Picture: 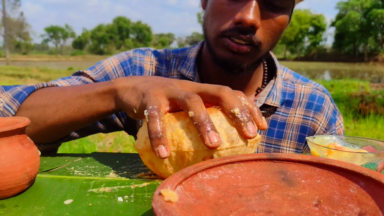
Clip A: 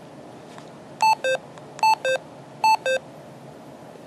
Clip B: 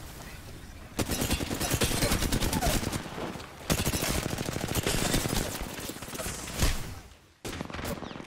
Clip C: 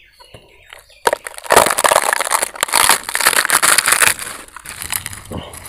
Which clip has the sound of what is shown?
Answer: C